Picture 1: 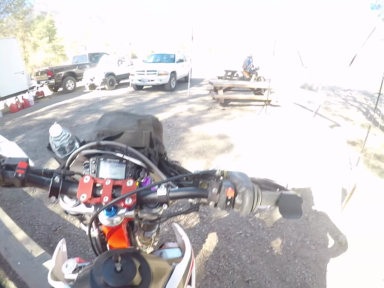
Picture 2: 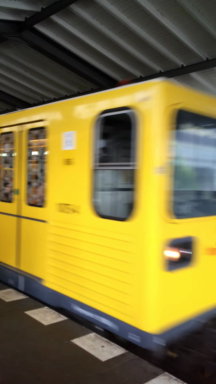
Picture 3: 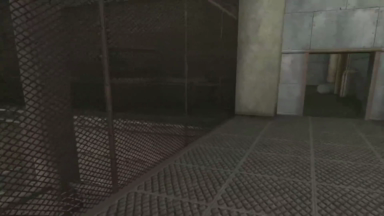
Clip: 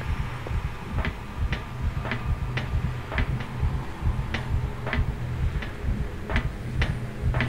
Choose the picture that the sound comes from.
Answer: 3